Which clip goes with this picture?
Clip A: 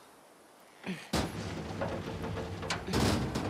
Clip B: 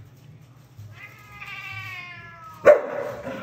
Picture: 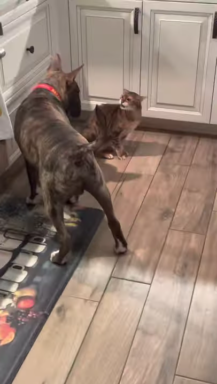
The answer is B